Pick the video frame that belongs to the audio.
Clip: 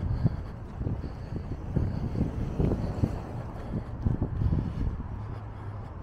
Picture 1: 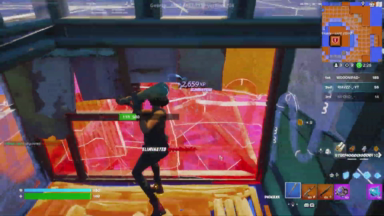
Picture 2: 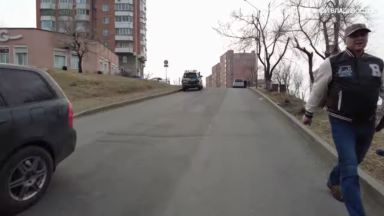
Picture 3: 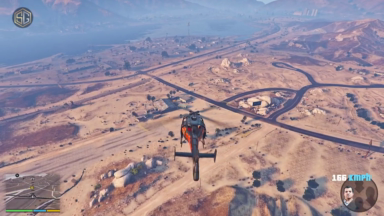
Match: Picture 2